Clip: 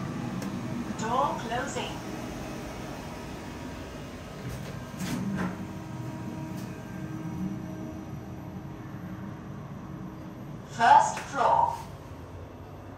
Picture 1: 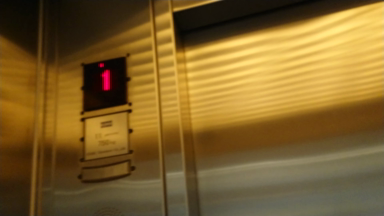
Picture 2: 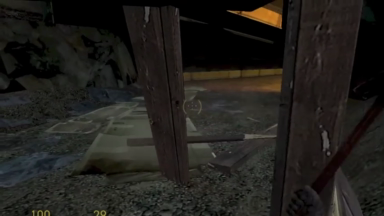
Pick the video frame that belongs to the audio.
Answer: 1